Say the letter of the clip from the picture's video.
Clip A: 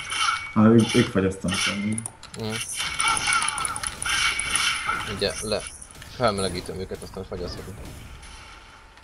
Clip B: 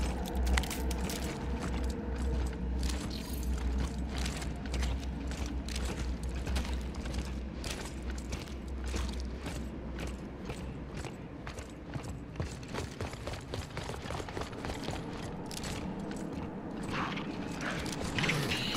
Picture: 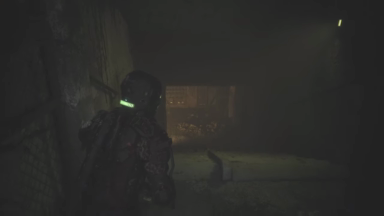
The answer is B